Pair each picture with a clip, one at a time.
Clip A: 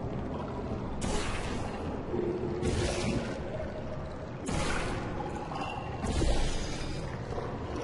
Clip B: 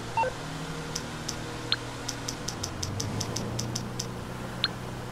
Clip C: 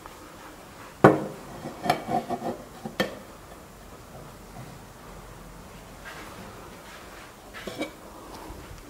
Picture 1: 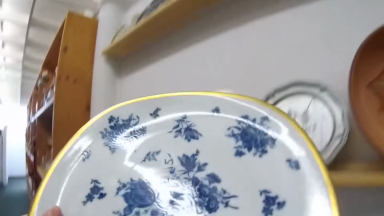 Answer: C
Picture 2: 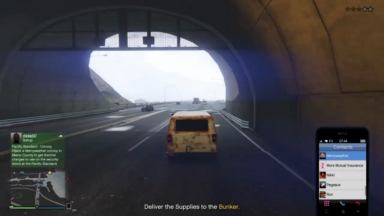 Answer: B